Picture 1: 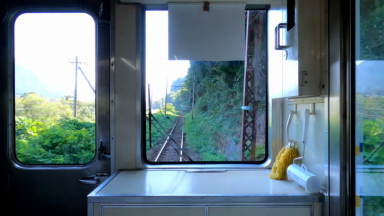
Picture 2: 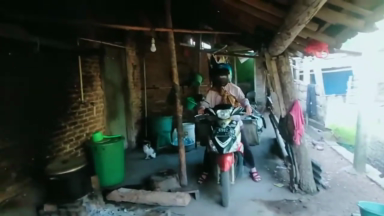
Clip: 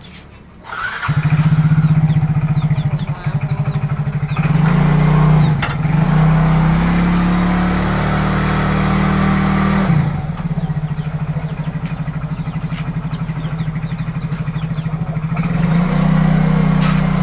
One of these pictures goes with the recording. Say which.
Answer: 2